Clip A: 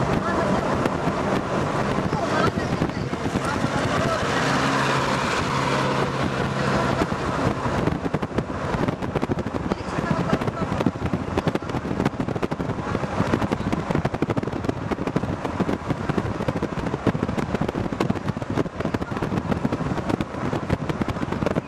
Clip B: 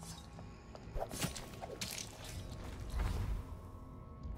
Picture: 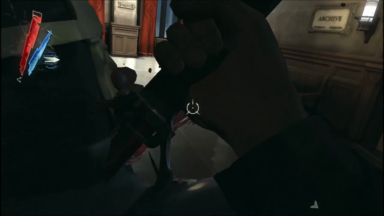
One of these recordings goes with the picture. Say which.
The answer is B